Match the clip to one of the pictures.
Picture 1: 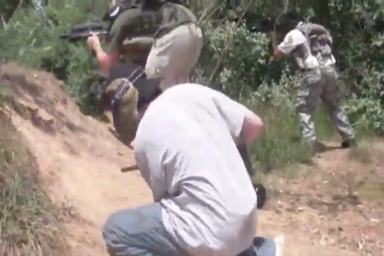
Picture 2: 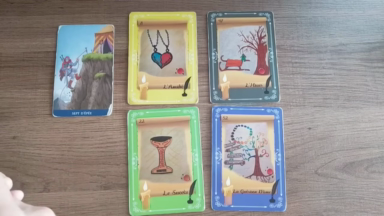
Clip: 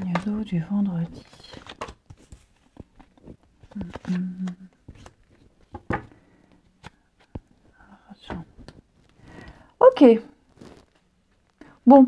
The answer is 2